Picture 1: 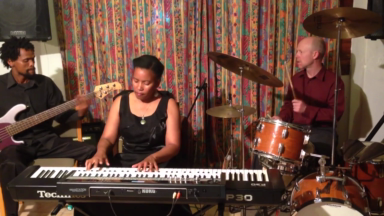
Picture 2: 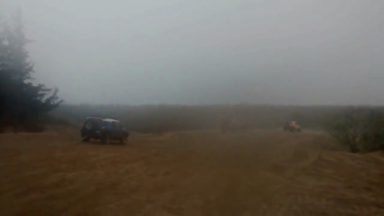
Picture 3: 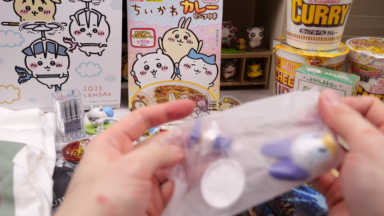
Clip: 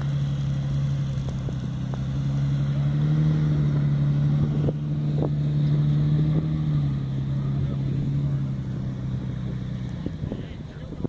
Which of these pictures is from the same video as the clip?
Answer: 2